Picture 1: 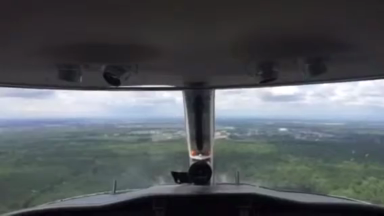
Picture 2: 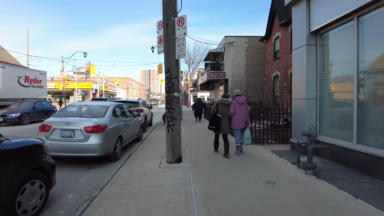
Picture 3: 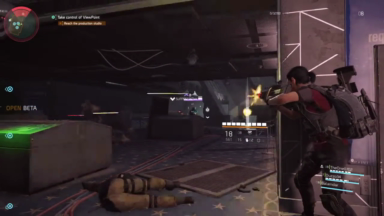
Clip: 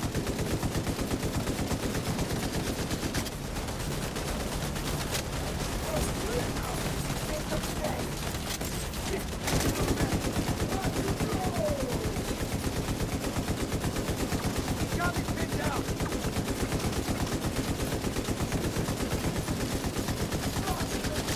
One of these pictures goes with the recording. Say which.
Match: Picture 3